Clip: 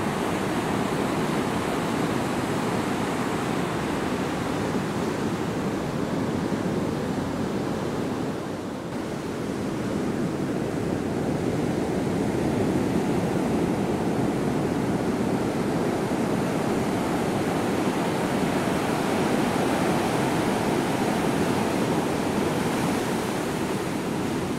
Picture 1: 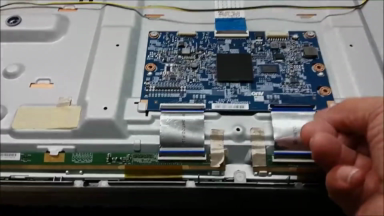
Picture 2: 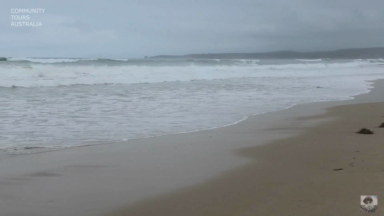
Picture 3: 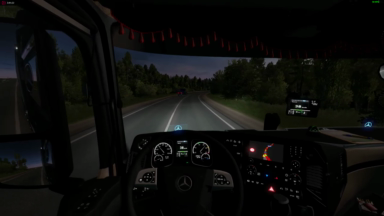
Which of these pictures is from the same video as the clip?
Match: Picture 2